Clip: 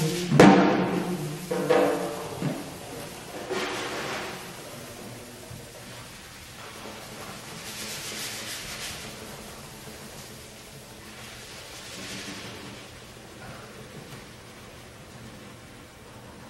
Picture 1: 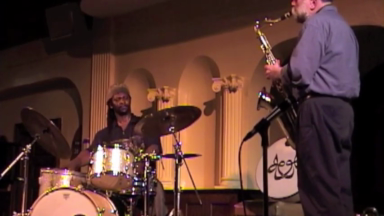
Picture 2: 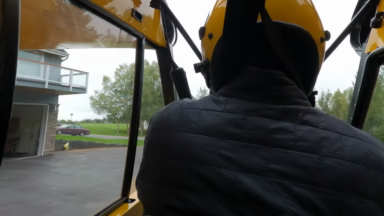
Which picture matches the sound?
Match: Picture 1